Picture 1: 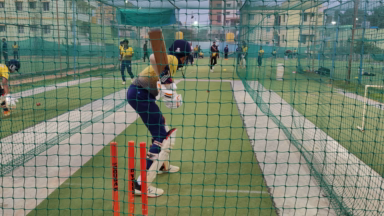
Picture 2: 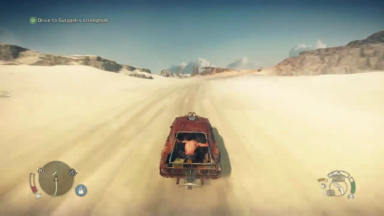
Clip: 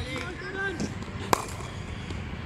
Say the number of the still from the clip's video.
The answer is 1